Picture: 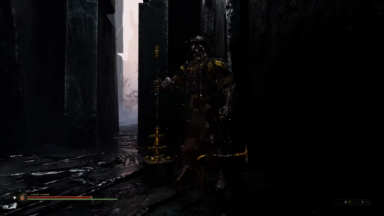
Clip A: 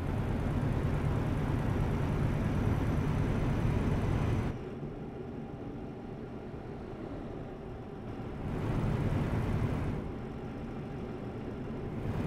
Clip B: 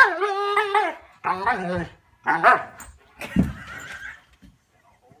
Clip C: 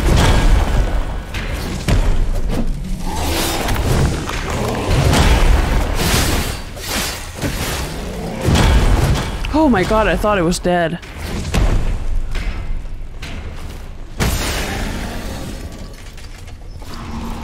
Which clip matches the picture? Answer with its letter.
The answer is C